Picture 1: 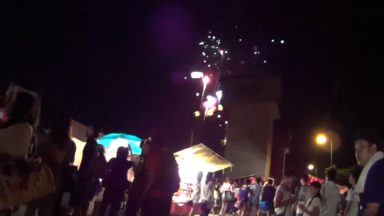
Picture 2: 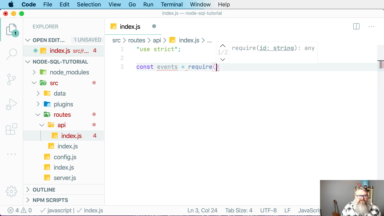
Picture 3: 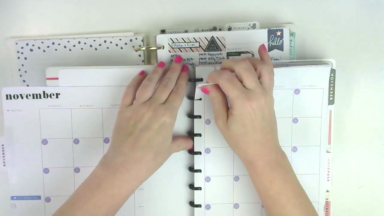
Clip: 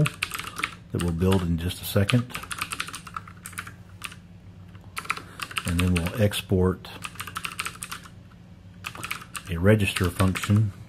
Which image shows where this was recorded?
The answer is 2